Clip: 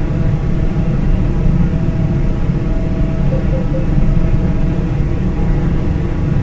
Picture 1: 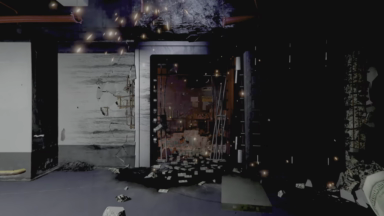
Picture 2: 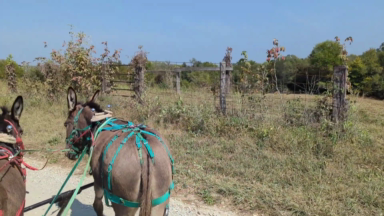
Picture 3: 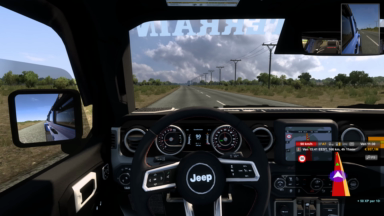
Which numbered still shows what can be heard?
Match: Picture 3